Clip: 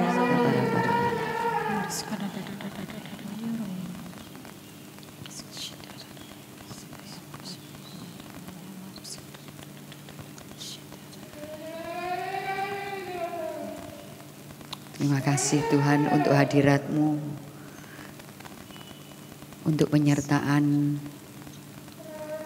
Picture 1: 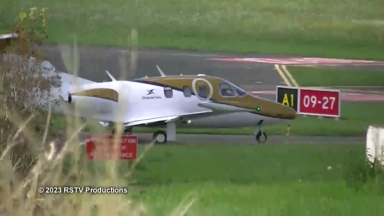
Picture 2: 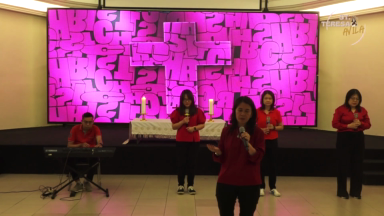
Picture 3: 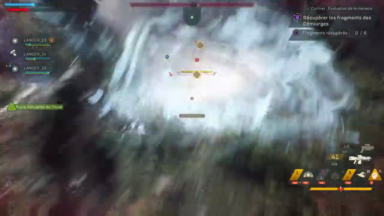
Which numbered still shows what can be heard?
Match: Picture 2